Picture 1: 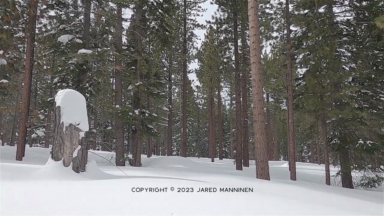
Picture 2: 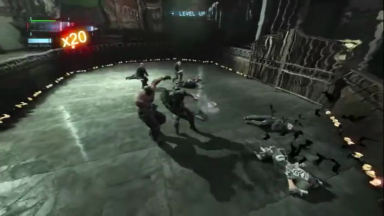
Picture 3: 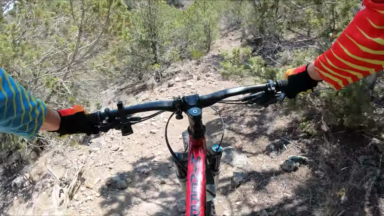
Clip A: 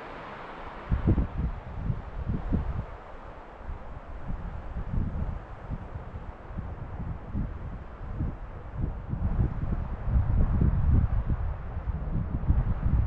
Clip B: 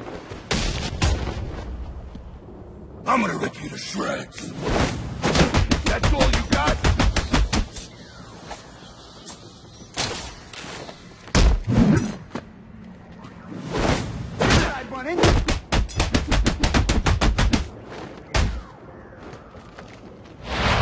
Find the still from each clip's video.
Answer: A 1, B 2